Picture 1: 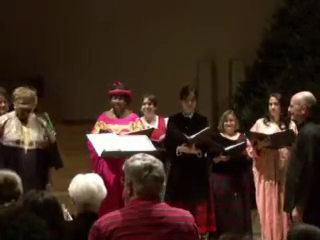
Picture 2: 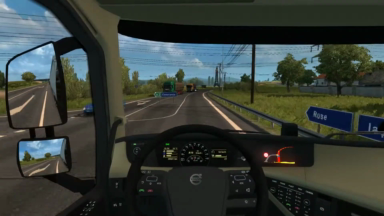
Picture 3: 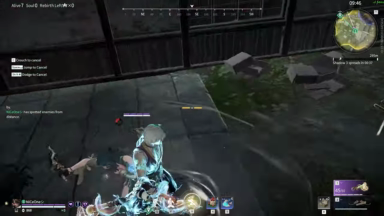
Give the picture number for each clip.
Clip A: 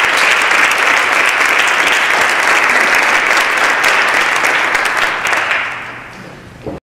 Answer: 1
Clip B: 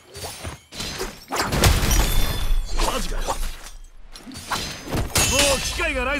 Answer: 3